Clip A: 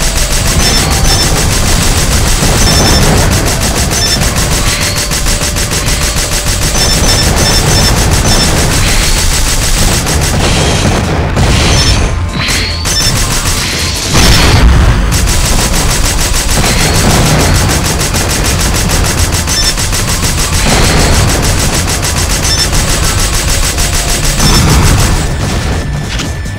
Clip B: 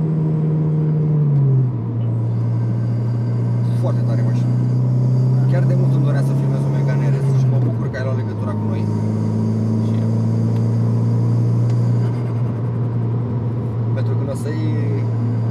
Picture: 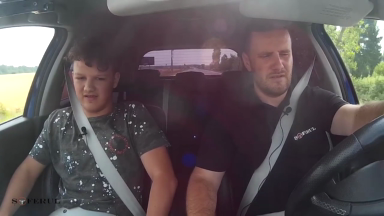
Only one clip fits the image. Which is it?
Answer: B